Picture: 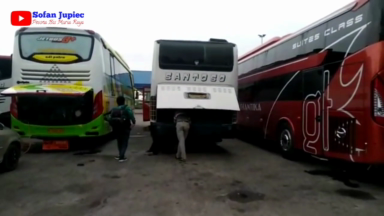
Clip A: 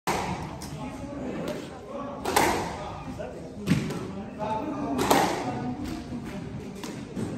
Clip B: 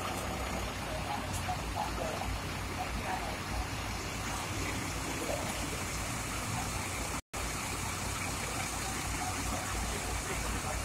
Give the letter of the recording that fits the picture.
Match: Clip B